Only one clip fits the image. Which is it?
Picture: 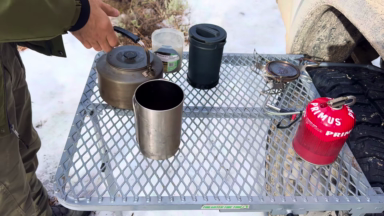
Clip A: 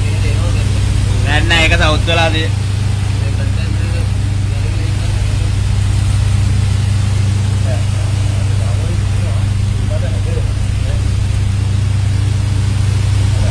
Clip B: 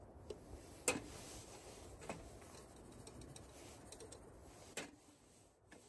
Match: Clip B